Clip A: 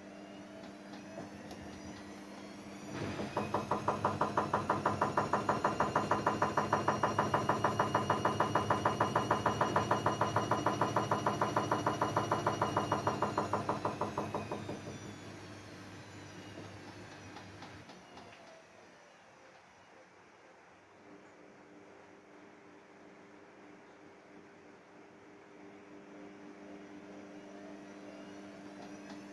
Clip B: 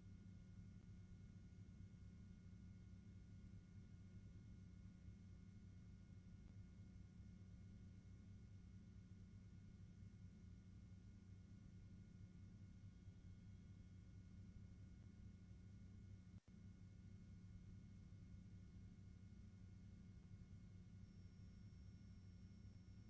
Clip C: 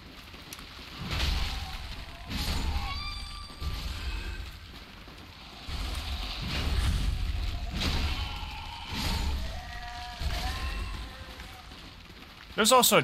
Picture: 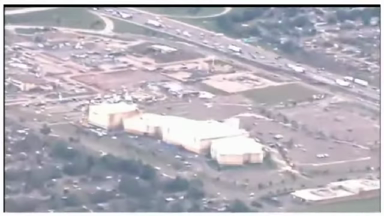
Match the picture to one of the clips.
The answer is B